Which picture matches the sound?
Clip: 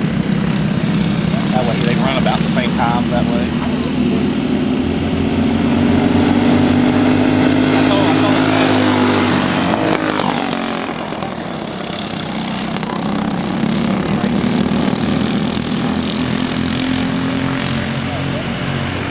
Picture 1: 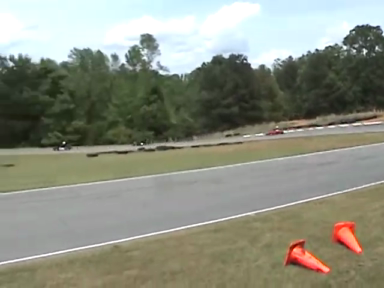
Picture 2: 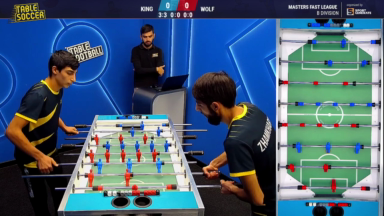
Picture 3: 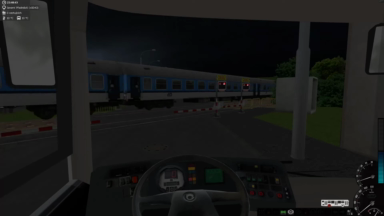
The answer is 1